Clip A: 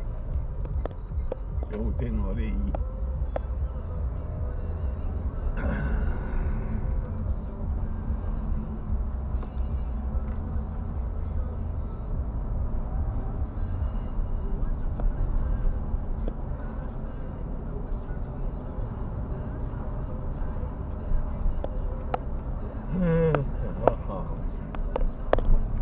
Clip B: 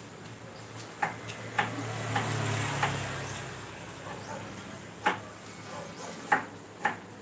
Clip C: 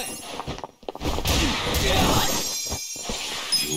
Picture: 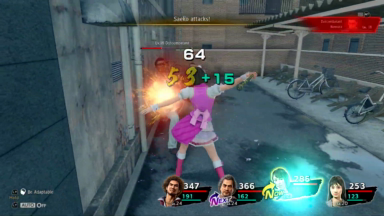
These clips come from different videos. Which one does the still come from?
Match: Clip C